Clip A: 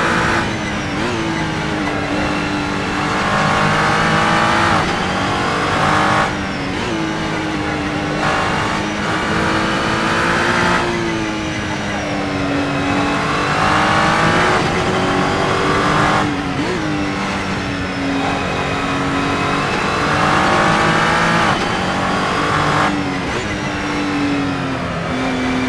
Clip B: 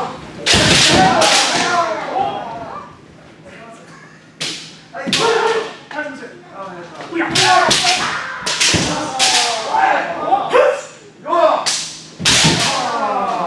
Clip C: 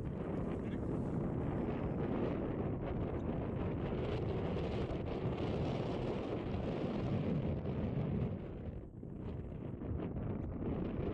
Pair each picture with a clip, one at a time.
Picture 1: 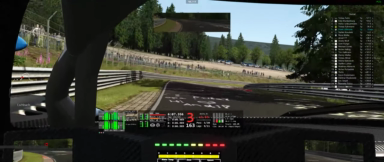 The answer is A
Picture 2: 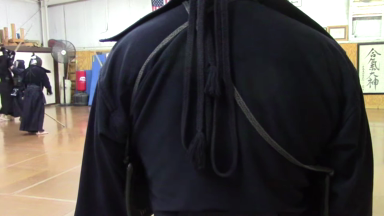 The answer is B